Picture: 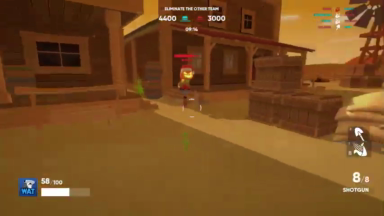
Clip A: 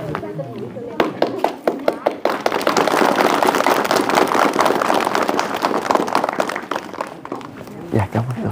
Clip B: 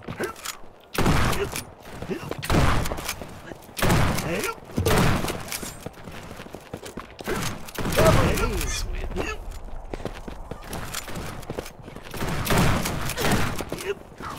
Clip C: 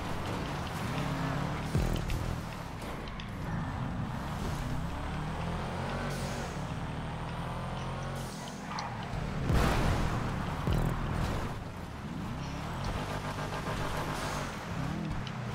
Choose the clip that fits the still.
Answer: B